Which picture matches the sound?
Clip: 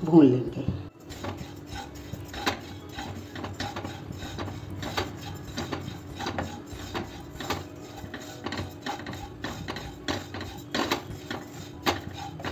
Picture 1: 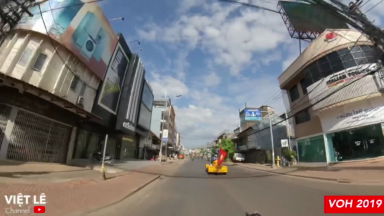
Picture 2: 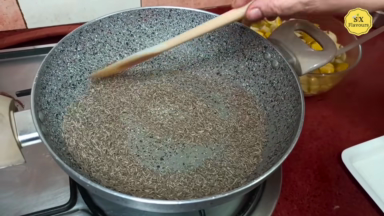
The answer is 2